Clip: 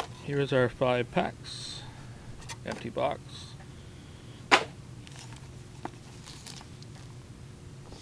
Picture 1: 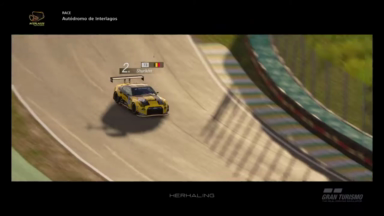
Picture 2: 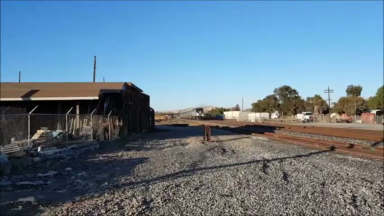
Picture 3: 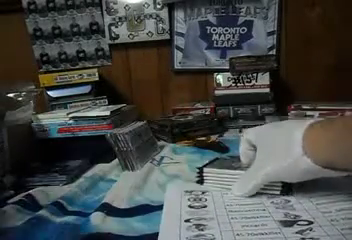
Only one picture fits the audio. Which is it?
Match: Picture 3